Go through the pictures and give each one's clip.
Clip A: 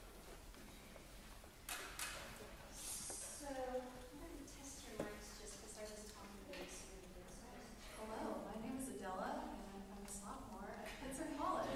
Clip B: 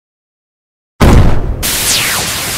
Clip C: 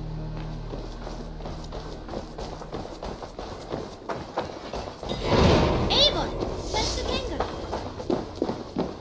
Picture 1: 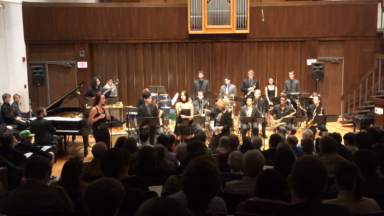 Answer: A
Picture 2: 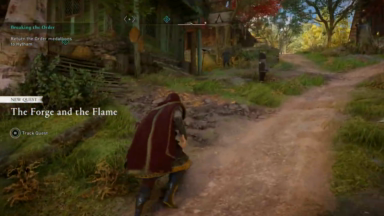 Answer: C